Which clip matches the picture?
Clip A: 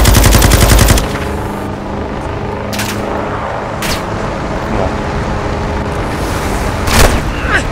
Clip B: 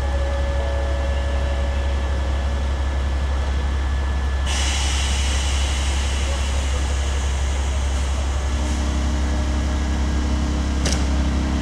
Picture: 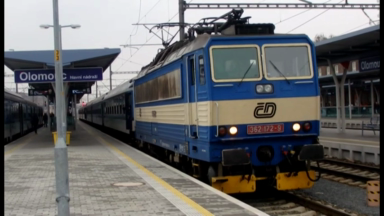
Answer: B